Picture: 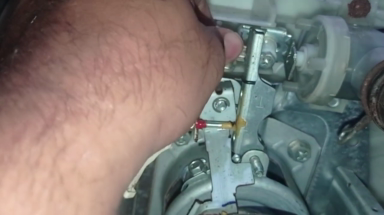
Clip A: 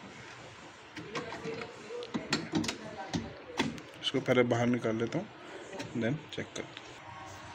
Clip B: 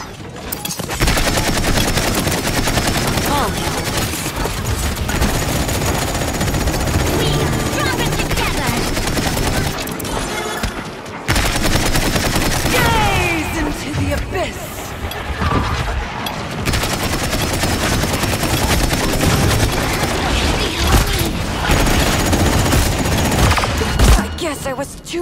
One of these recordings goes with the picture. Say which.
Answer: A